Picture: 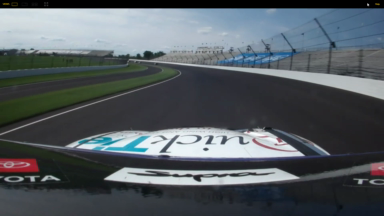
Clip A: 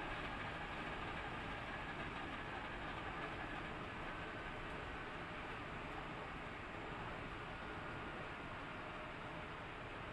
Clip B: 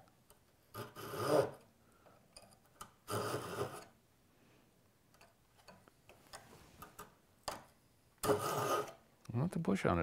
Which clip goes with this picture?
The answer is A